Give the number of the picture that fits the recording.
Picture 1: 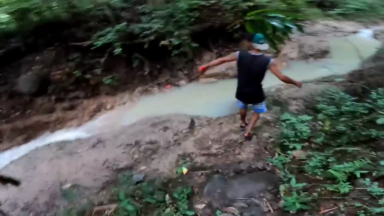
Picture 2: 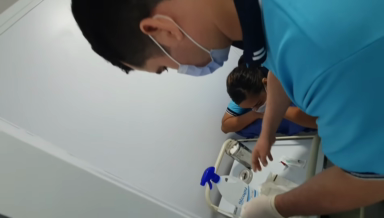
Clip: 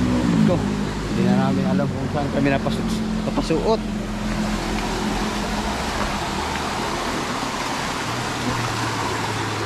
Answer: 1